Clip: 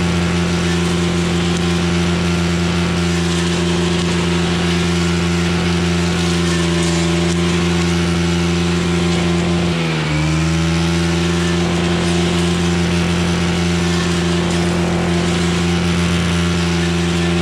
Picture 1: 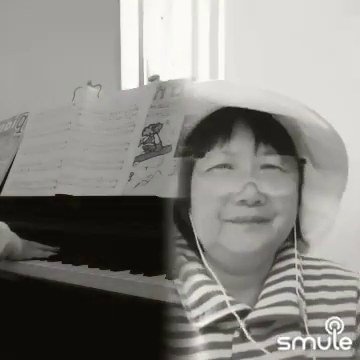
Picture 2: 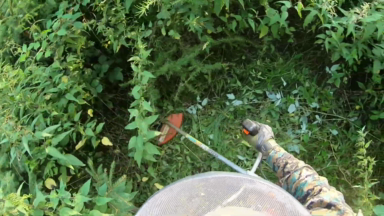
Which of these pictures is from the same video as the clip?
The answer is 2